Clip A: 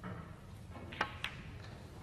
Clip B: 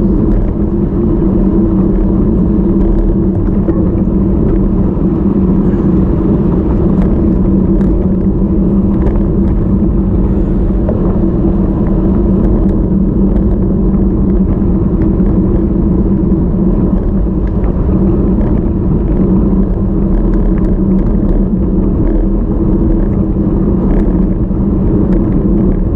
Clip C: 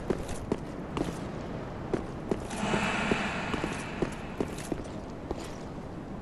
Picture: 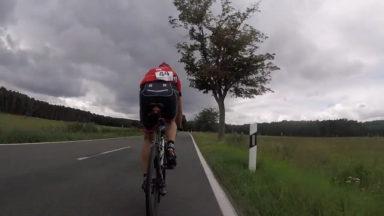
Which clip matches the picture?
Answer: B